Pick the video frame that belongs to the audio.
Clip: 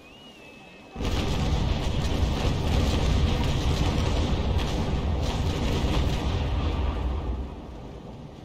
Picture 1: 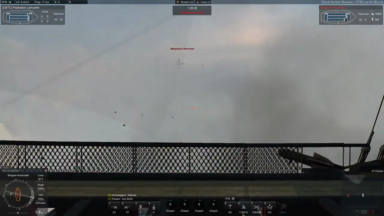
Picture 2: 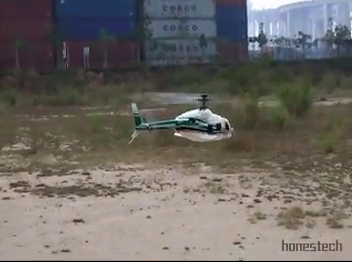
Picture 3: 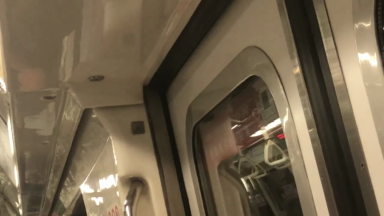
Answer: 1